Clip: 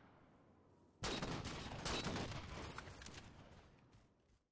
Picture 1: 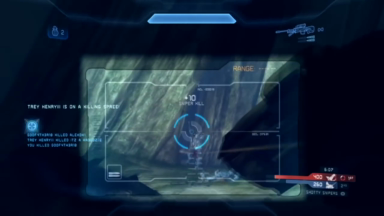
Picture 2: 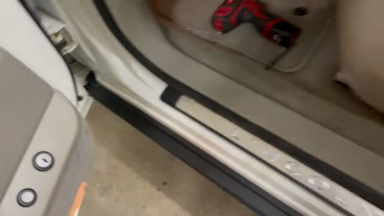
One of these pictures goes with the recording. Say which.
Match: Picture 1